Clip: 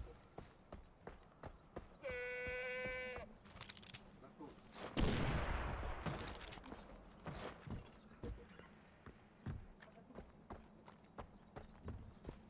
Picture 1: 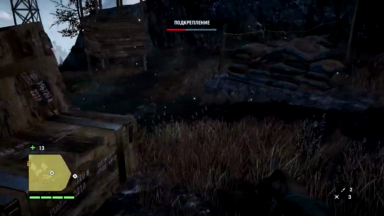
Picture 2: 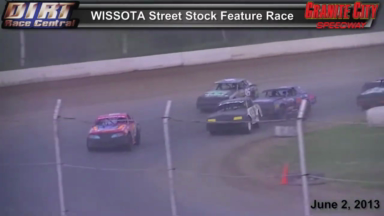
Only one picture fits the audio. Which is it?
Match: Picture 1